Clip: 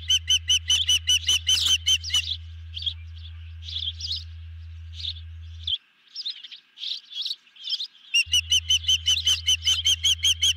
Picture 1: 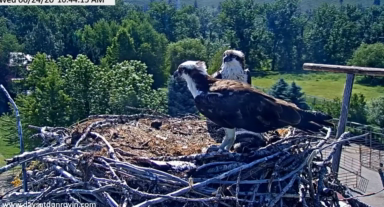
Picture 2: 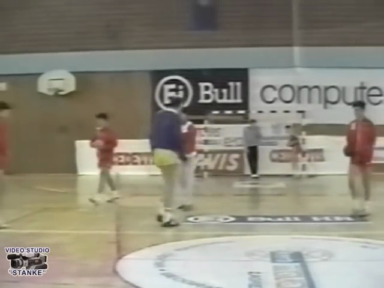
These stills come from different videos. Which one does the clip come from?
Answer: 1